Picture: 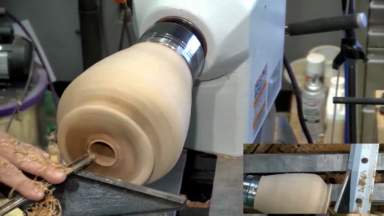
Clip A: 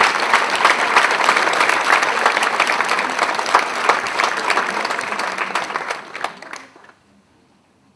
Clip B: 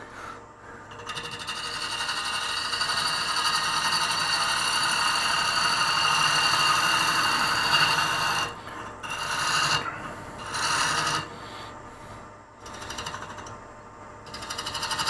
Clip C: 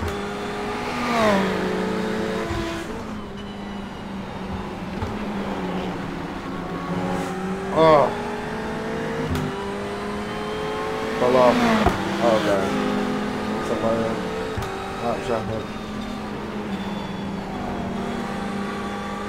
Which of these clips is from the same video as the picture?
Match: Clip B